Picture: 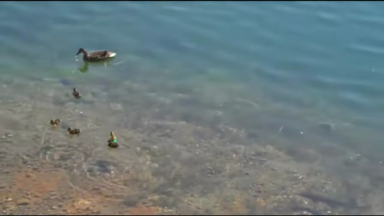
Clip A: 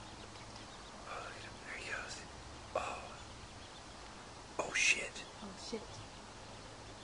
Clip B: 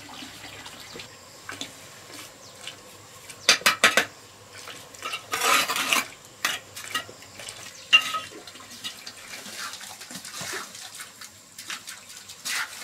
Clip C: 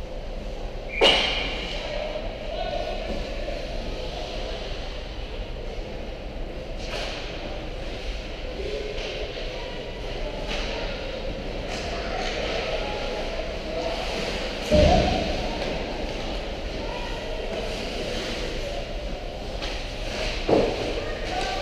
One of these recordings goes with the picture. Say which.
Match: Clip A